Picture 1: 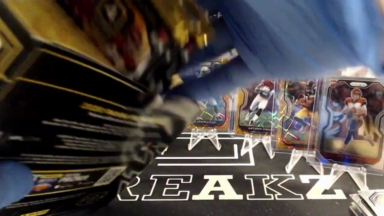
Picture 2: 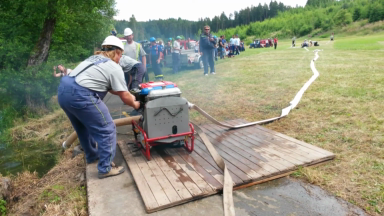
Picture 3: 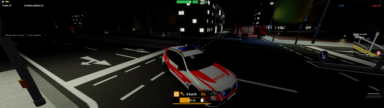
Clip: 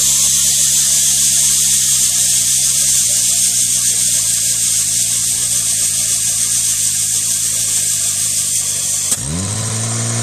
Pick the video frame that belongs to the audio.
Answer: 2